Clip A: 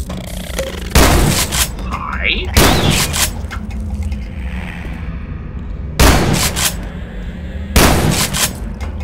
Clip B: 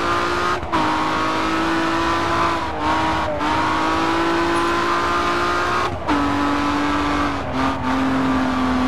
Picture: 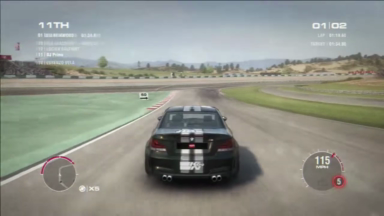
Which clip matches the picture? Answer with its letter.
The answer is B